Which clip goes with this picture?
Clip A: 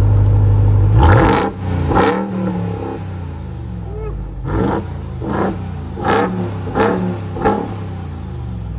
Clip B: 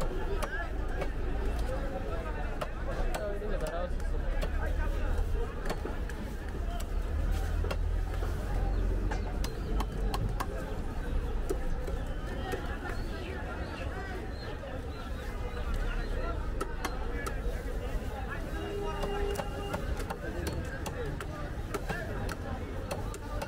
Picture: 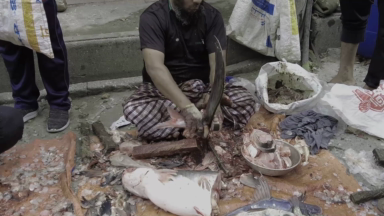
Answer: B